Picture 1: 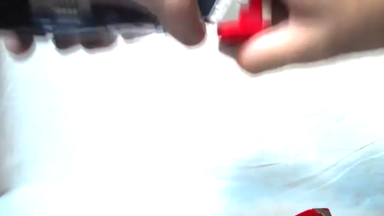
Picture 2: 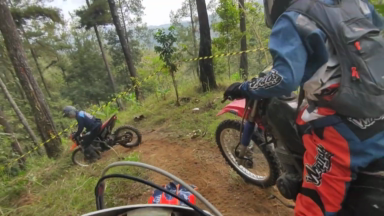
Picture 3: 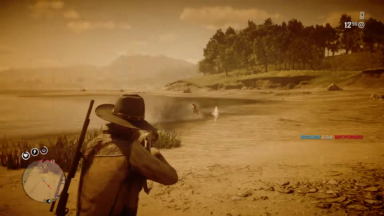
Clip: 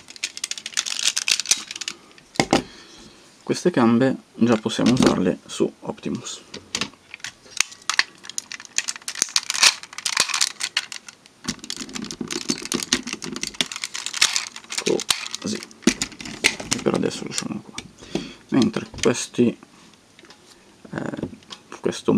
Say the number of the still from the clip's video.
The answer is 1